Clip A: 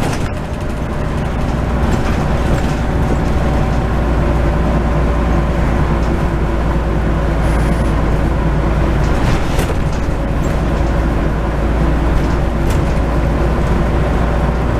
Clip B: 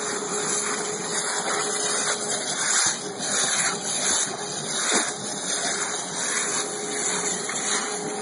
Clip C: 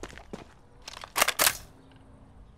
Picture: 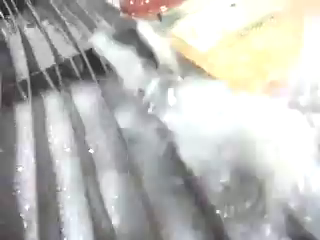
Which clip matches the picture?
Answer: B